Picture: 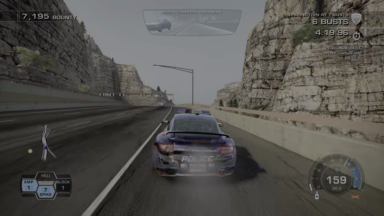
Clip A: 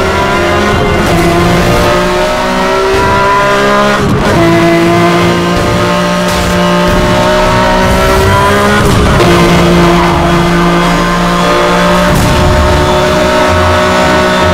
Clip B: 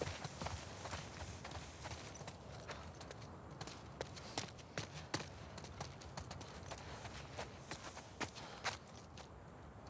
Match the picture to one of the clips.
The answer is A